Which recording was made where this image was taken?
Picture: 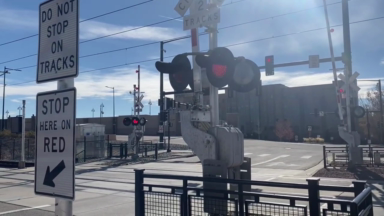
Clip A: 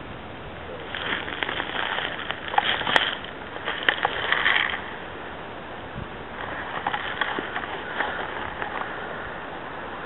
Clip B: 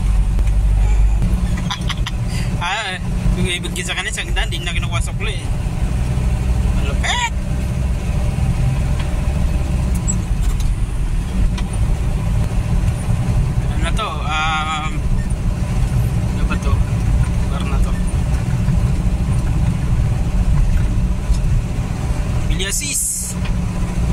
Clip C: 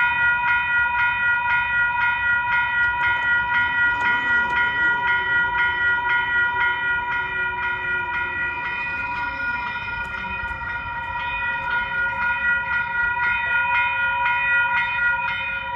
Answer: C